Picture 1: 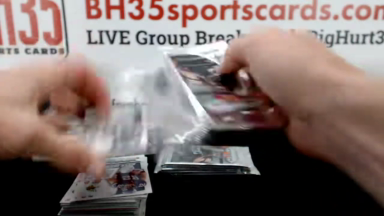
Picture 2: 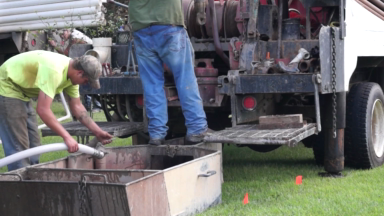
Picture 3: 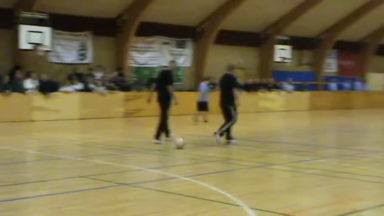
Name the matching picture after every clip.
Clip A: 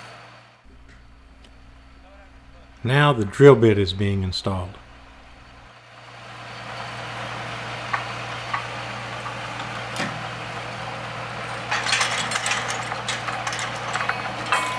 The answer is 2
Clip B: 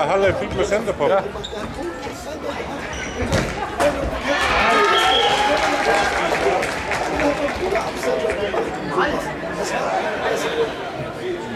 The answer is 3